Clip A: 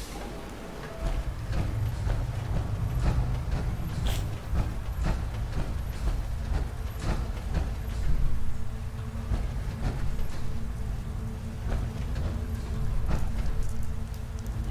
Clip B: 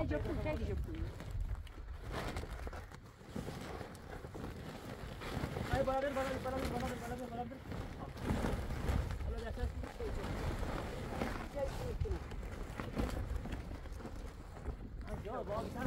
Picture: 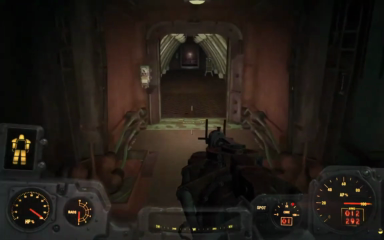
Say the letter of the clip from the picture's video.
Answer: A